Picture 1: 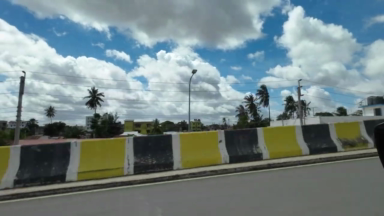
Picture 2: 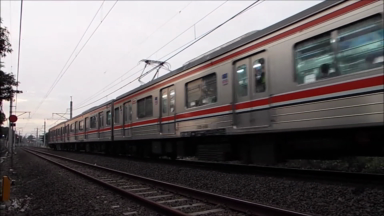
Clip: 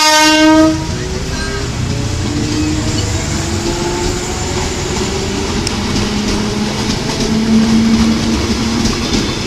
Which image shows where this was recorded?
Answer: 2